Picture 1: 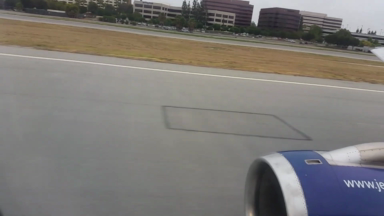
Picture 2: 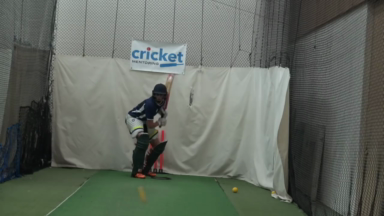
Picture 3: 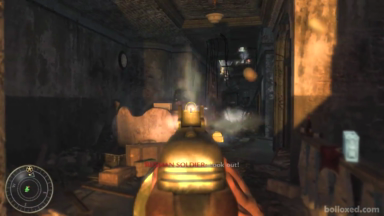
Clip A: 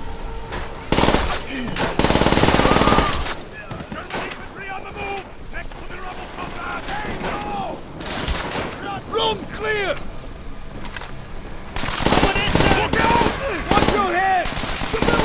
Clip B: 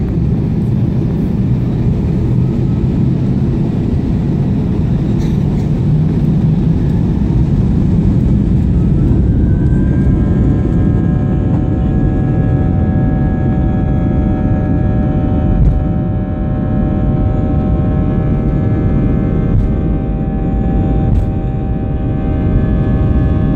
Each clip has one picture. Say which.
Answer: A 3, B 1